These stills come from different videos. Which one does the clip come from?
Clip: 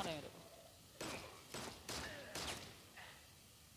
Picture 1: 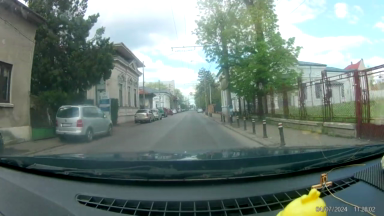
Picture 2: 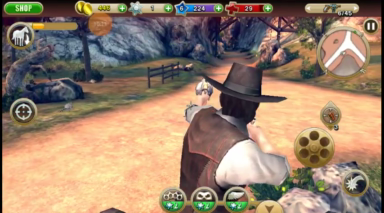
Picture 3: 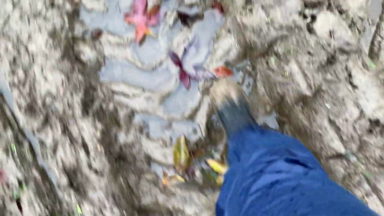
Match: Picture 2